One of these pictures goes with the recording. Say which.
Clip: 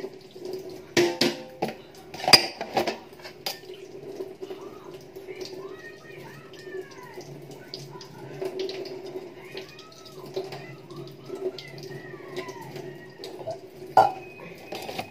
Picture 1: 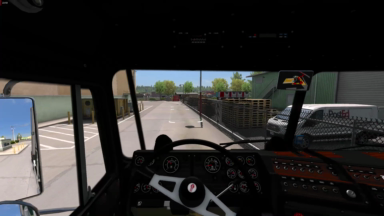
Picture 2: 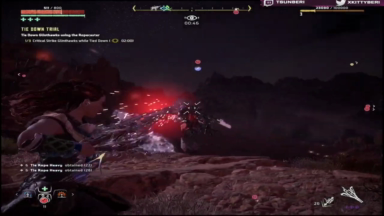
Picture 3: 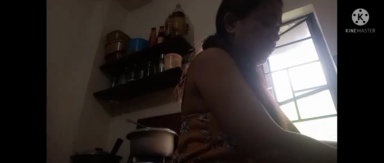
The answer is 3